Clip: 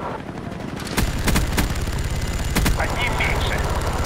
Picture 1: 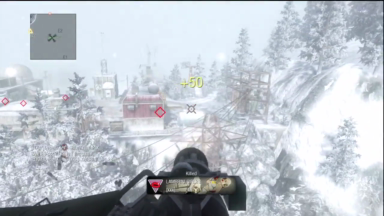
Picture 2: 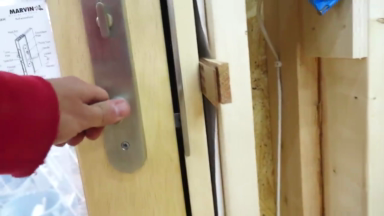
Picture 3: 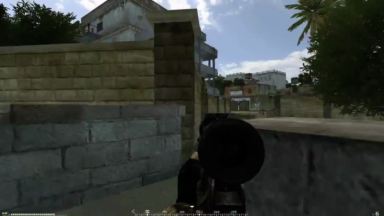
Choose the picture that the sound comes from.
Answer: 1